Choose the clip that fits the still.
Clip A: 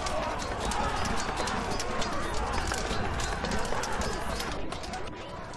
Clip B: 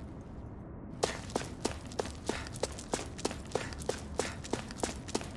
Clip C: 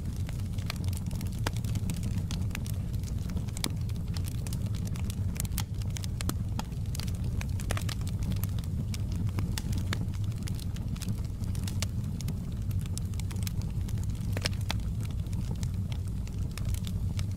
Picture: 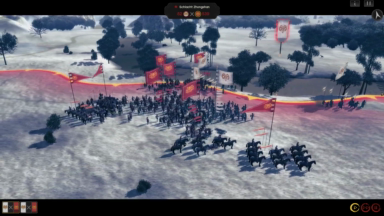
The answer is A